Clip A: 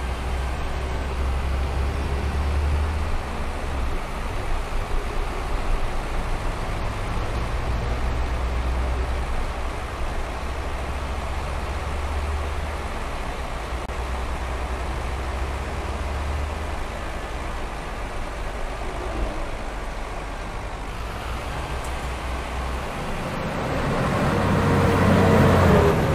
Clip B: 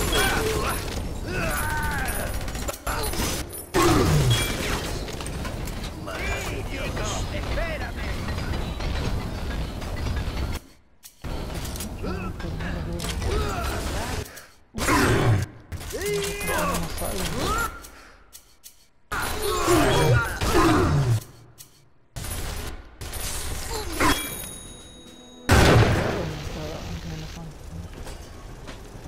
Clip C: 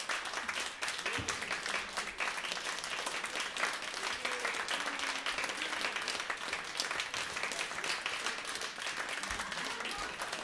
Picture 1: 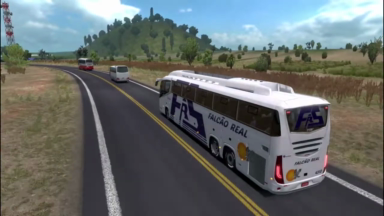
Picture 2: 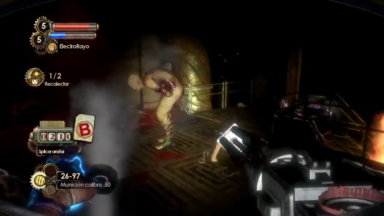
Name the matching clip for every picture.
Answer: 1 A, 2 B